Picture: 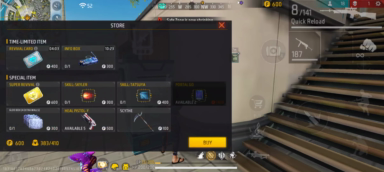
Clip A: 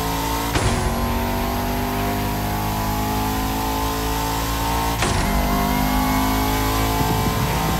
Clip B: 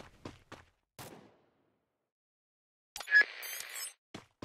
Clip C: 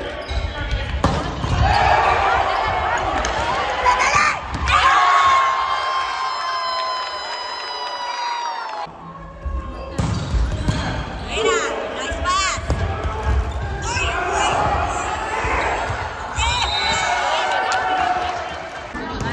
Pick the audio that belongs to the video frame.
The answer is B